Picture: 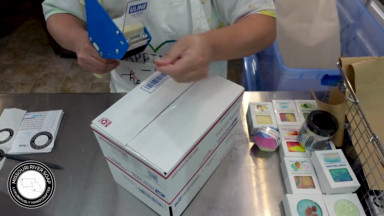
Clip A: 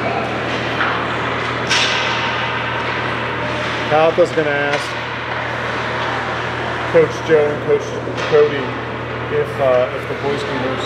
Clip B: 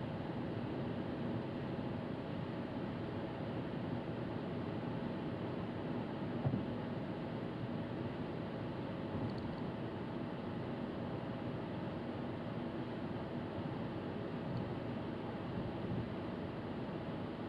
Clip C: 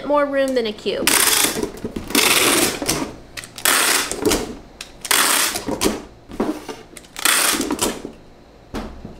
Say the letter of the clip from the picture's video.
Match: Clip C